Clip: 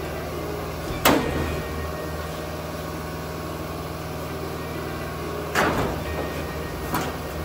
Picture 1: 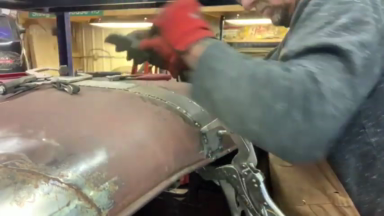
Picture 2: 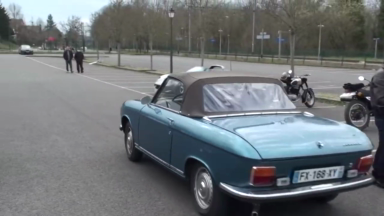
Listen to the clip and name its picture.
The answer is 1